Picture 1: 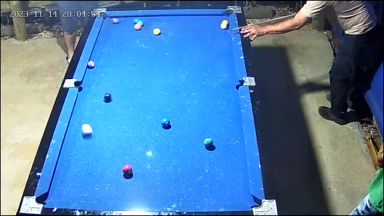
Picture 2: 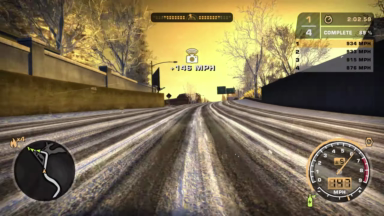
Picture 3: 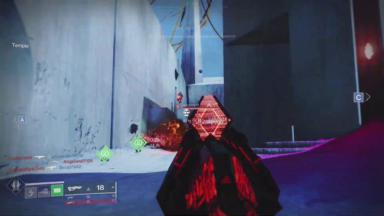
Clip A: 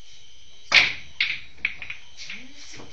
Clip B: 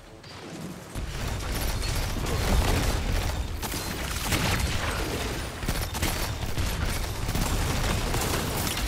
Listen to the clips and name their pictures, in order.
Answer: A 1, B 3